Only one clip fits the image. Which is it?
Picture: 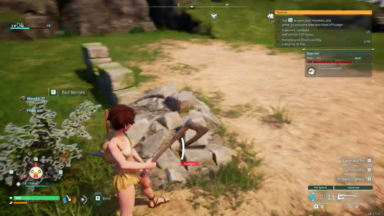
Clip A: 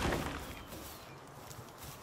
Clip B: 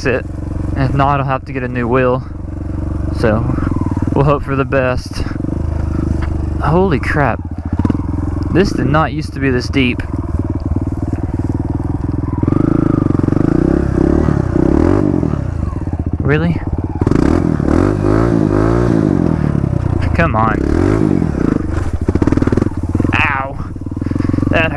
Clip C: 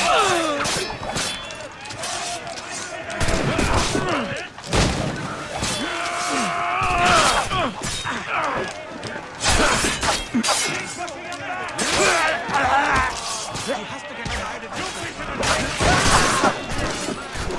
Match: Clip A